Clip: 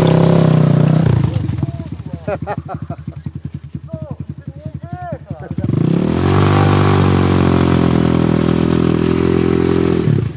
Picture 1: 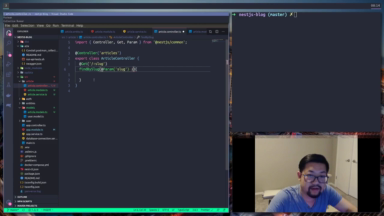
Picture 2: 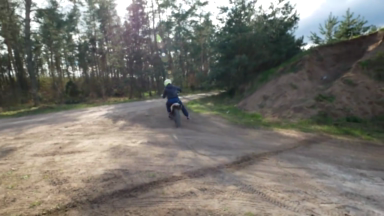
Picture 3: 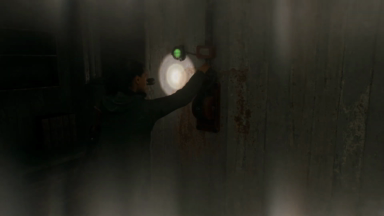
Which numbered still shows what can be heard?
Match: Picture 2